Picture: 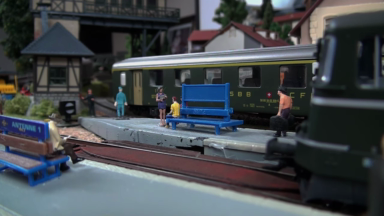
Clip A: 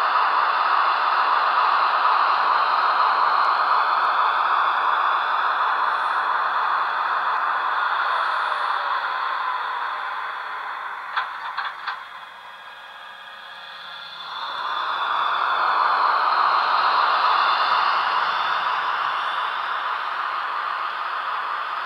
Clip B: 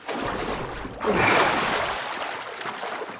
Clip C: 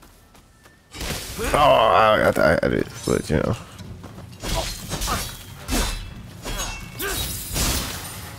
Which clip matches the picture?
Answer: A